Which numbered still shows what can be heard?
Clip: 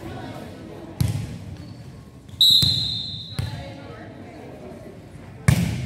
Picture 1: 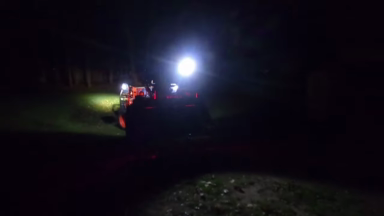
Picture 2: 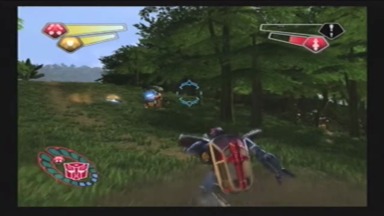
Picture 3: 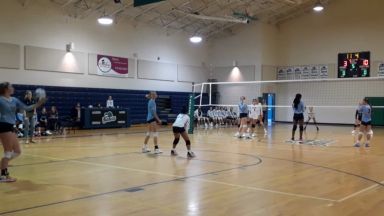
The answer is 3